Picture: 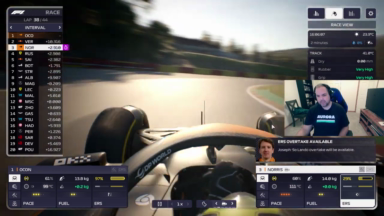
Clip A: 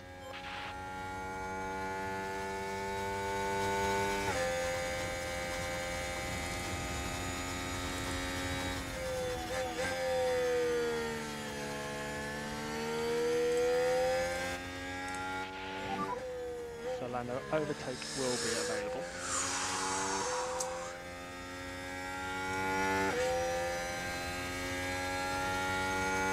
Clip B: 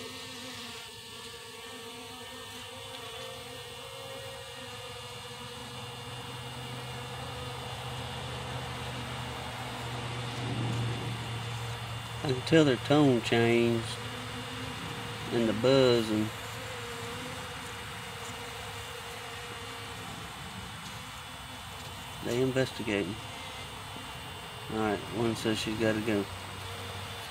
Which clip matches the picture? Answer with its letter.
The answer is A